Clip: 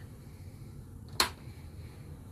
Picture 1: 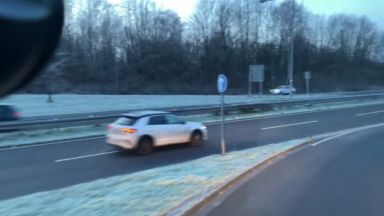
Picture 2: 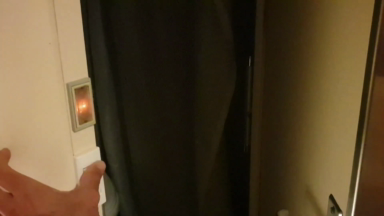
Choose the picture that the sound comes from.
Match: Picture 2